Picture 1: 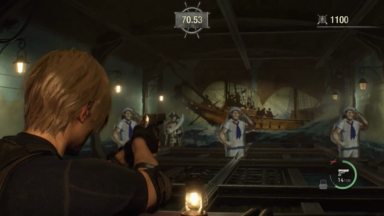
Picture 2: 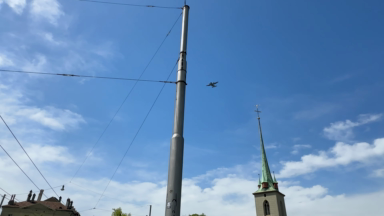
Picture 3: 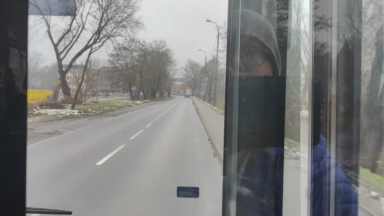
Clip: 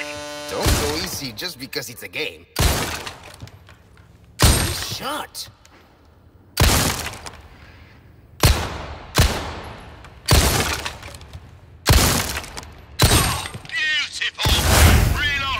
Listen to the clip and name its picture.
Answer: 1